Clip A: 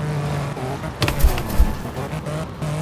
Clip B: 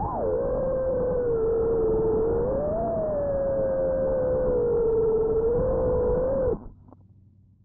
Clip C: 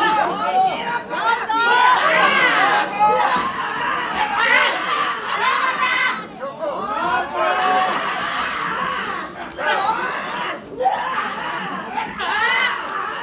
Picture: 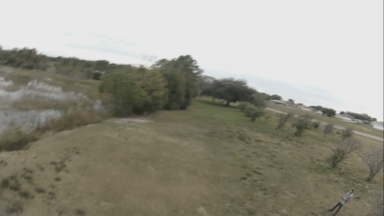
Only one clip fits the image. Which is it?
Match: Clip B